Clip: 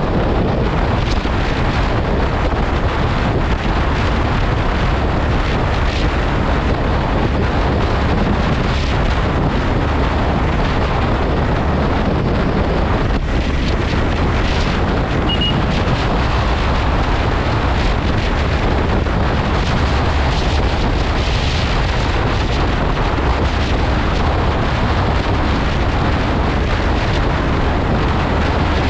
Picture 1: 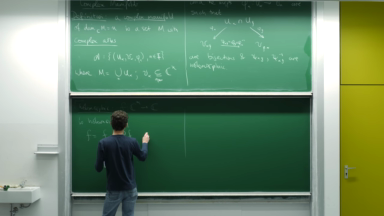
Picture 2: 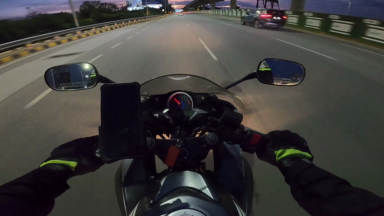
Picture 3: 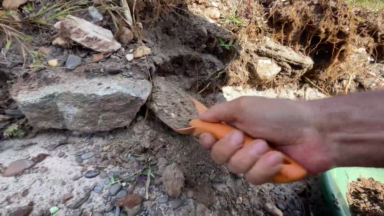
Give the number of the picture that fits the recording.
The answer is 2